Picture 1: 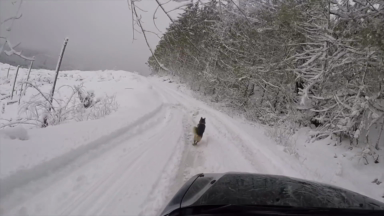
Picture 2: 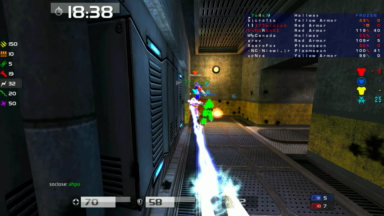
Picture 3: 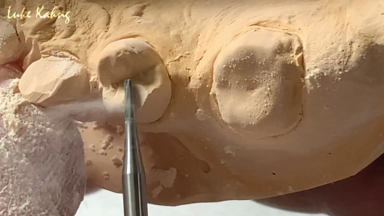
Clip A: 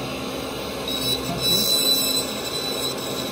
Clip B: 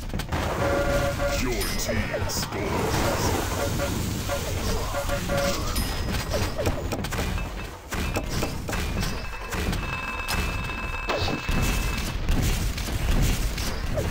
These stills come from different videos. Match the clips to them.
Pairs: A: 3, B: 2